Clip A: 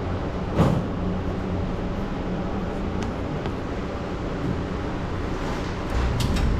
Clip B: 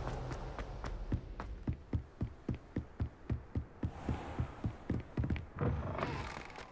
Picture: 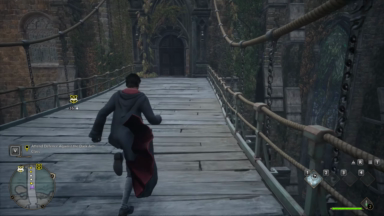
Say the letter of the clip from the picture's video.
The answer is B